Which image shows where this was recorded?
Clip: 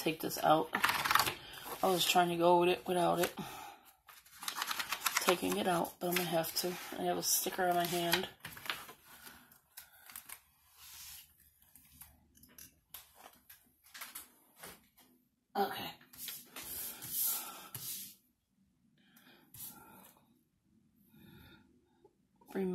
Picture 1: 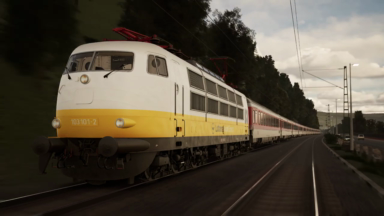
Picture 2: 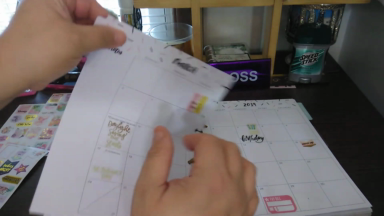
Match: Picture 2